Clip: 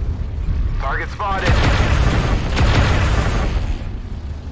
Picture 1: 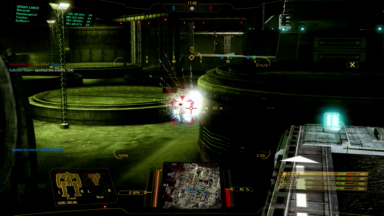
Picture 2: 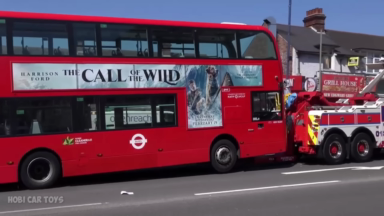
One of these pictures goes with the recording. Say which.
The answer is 1